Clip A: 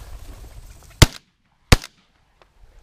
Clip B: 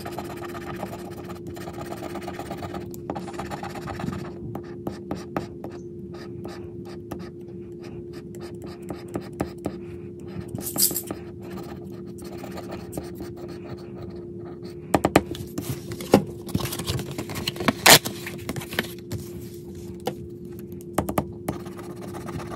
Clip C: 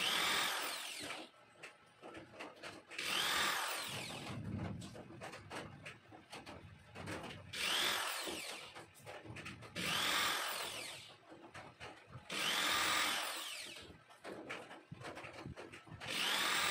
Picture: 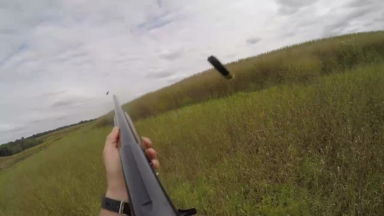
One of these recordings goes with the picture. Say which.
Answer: A